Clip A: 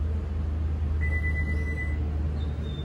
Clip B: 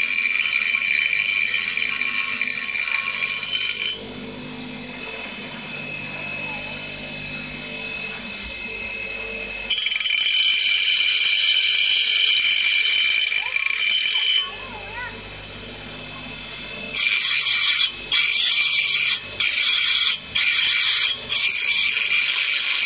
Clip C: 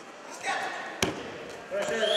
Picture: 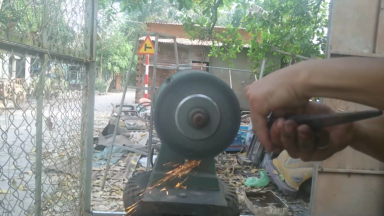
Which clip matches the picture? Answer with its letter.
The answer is B